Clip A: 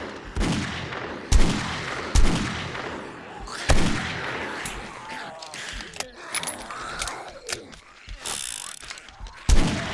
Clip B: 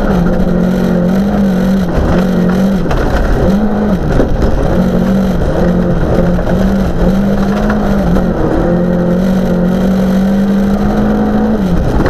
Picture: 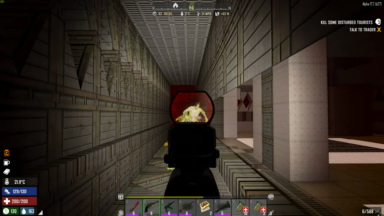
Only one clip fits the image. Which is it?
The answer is A